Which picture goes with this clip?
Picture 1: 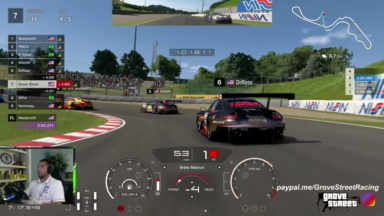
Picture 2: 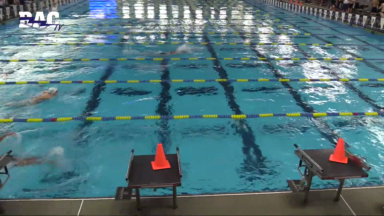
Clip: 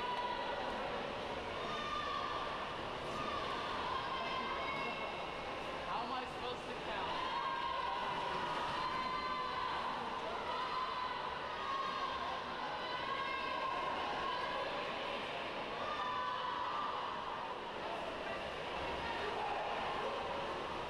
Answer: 2